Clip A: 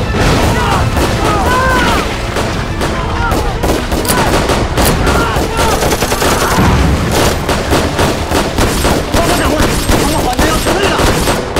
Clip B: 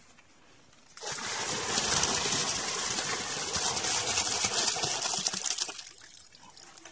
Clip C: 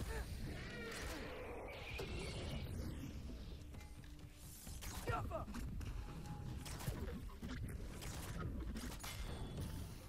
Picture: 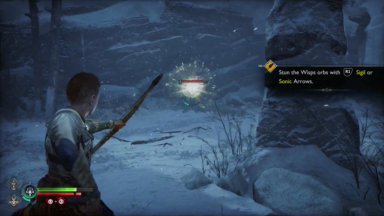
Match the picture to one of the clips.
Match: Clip C